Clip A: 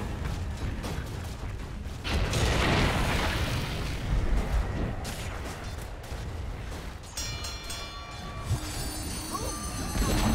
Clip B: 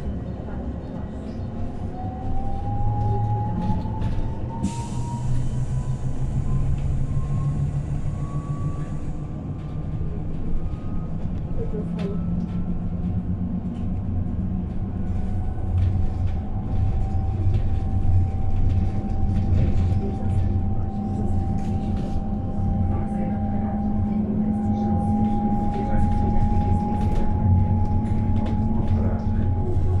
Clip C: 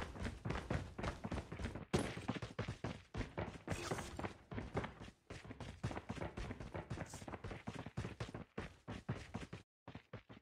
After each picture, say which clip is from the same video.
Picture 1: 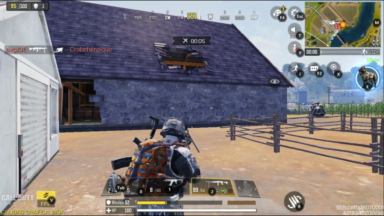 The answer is C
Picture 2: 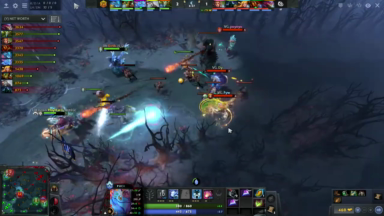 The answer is A